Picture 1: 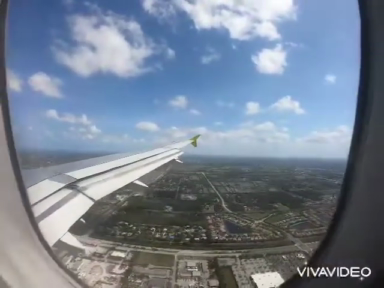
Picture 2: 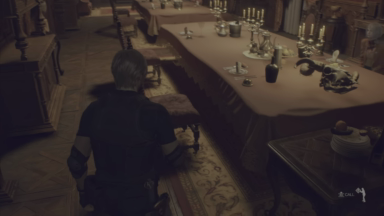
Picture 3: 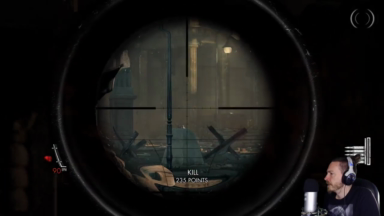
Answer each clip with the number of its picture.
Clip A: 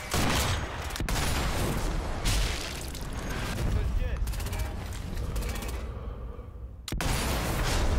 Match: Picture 3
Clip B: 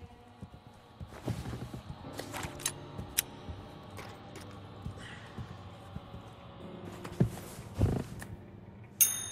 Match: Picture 2